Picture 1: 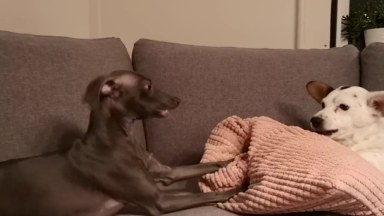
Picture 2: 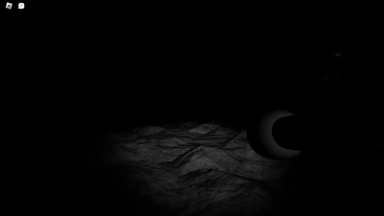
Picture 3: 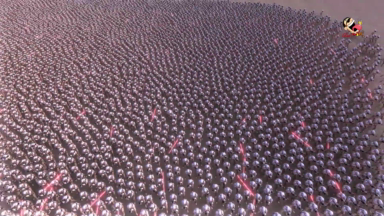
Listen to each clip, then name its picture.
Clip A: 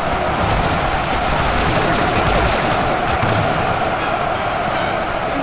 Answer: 3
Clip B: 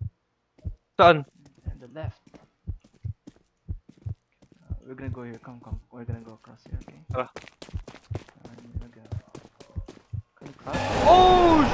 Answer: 2